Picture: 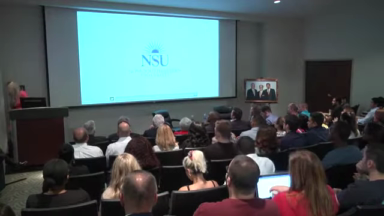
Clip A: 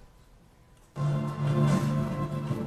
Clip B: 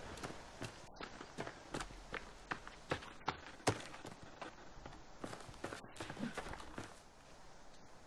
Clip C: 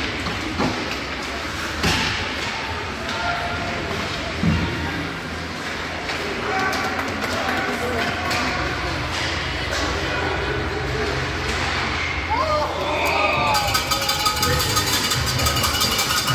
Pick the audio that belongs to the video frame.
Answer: A